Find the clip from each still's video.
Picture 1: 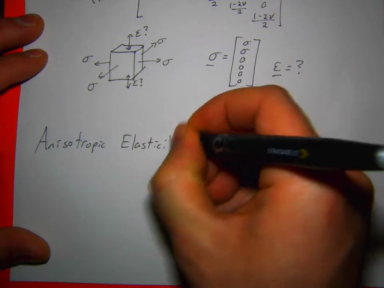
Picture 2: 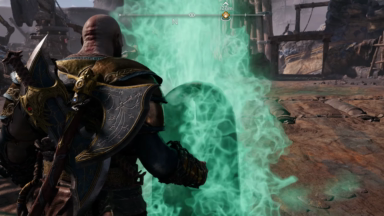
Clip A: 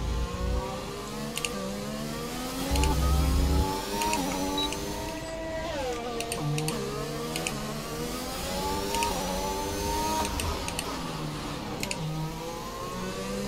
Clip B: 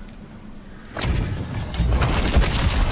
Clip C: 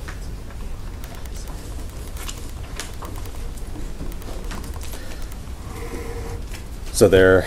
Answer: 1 C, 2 B